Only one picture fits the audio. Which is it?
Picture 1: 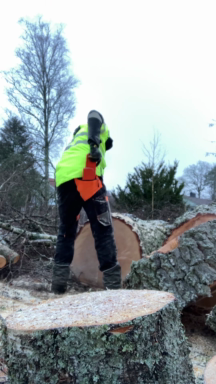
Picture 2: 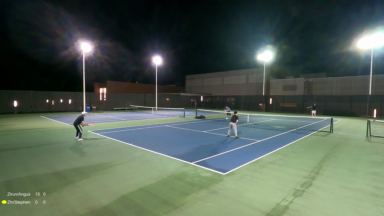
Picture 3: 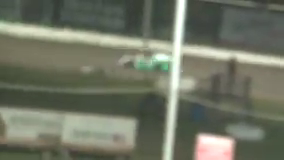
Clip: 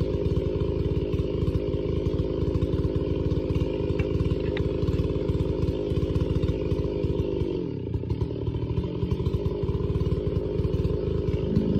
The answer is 1